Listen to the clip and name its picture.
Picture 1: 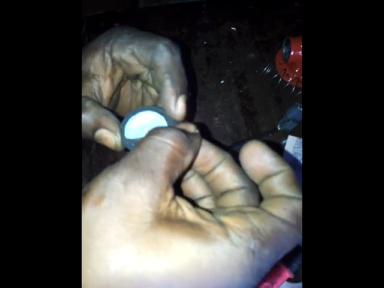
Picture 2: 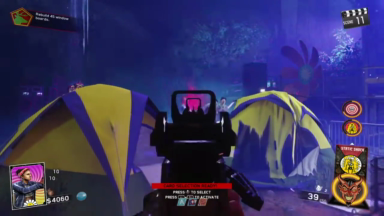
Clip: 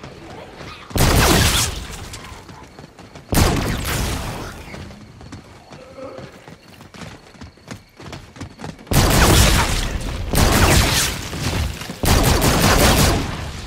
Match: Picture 2